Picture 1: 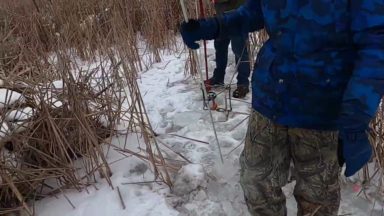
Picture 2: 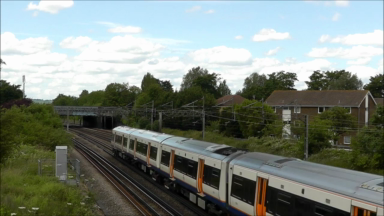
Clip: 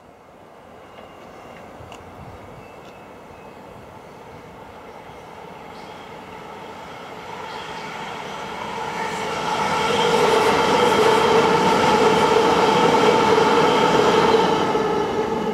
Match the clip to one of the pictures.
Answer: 2